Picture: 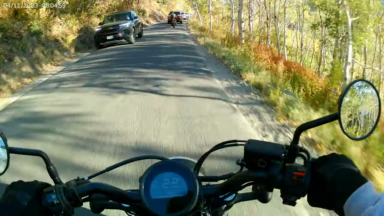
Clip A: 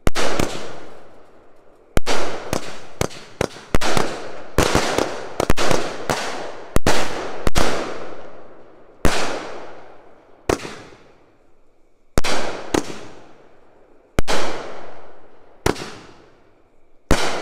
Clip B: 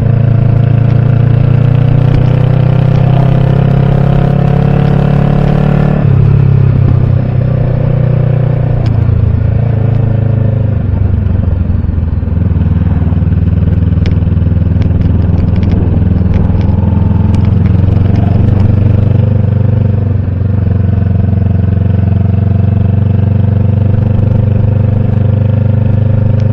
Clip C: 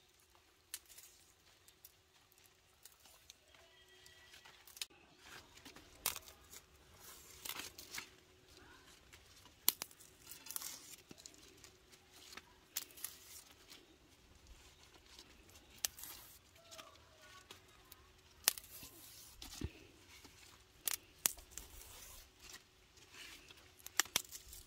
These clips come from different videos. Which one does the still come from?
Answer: B